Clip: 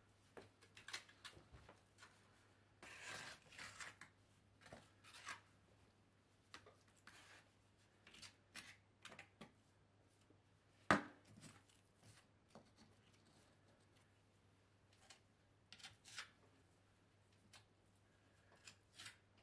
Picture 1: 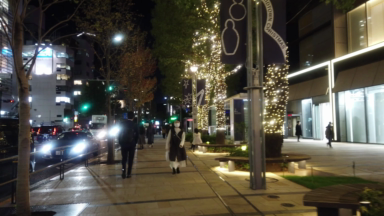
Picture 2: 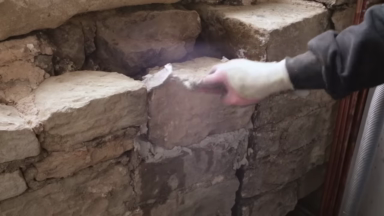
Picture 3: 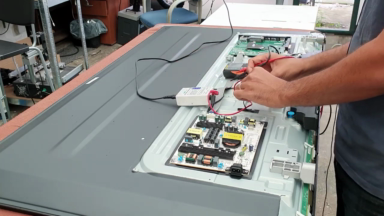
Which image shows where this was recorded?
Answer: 2